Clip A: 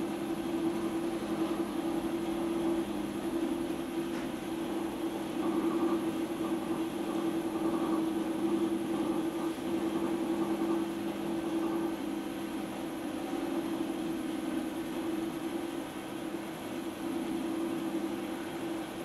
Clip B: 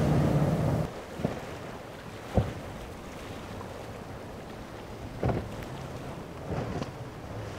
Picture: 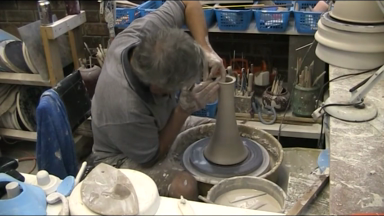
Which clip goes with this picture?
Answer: A